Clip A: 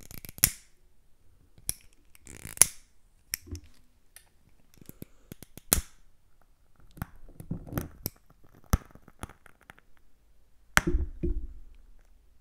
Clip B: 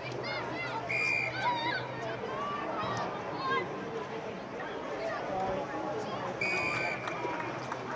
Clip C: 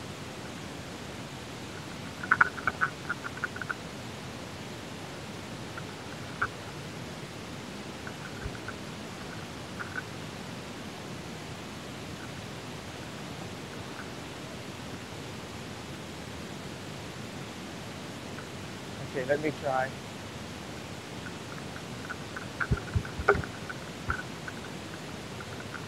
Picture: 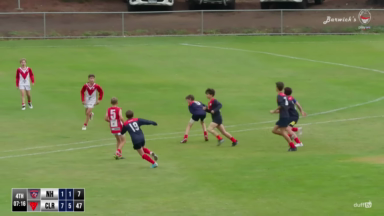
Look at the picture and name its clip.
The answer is B